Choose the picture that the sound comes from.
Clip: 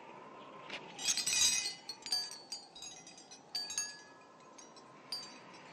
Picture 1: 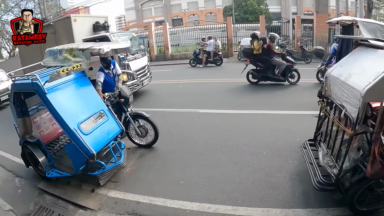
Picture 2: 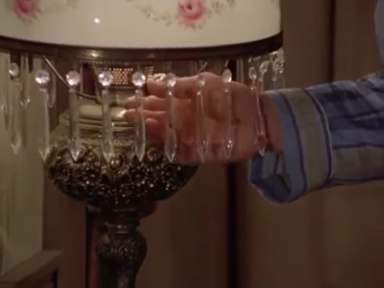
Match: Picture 2